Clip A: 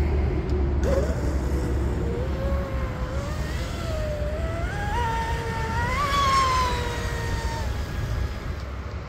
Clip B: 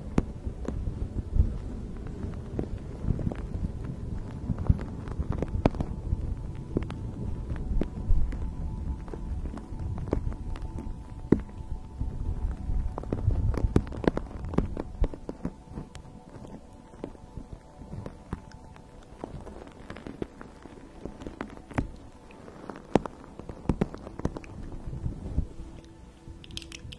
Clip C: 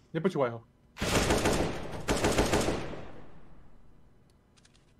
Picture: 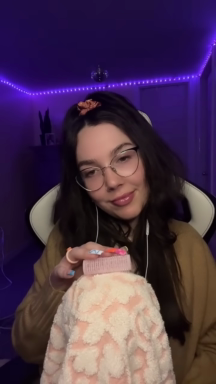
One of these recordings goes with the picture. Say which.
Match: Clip B